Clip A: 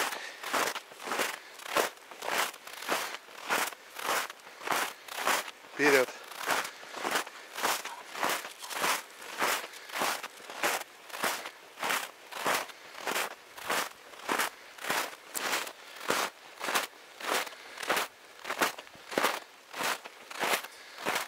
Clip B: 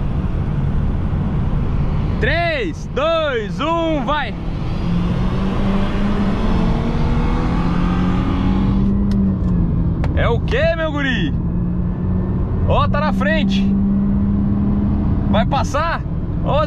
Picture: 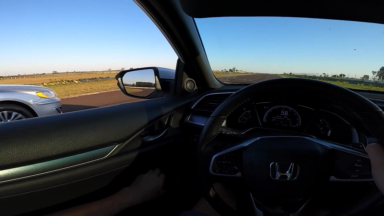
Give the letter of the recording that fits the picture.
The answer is B